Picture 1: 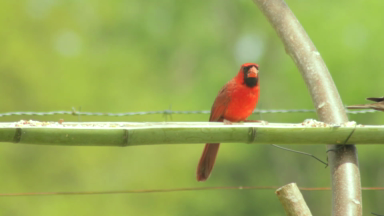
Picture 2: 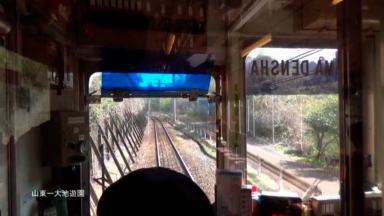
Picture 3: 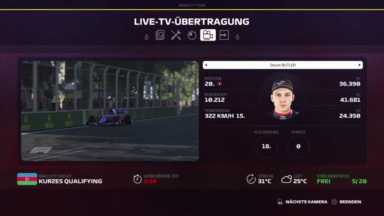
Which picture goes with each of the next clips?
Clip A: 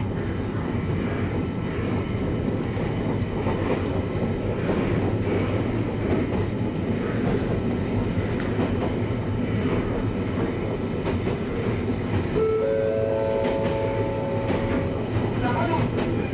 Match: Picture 2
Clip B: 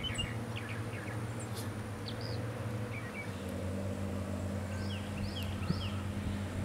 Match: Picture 1